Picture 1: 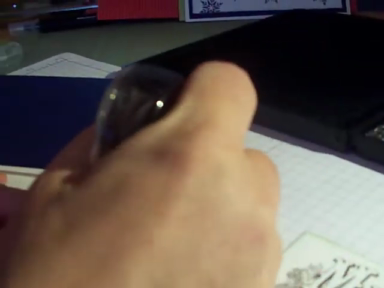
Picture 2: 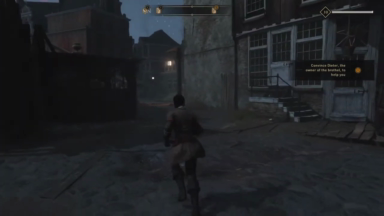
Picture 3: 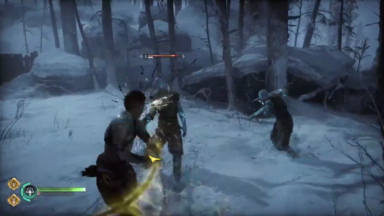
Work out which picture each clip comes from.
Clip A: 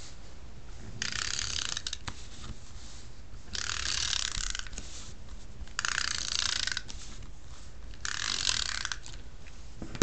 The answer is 1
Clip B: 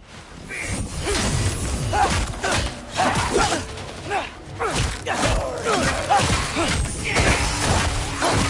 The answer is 3